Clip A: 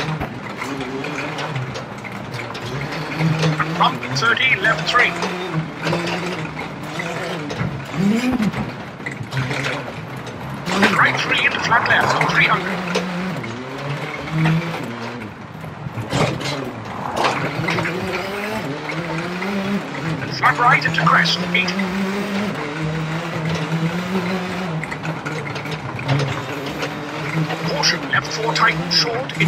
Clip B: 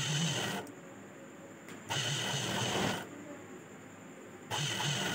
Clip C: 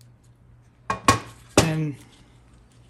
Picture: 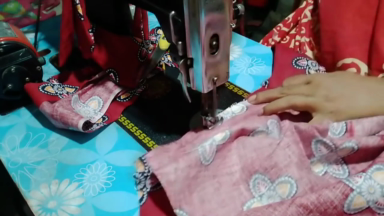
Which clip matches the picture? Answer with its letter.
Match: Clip B